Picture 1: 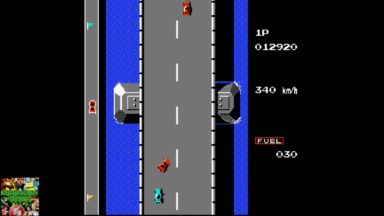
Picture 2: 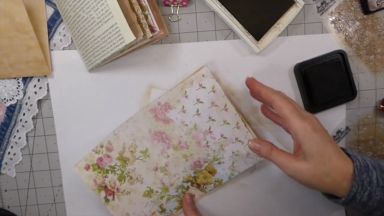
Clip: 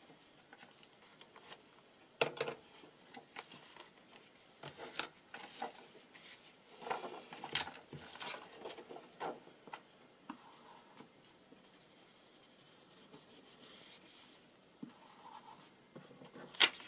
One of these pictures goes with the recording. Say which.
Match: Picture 2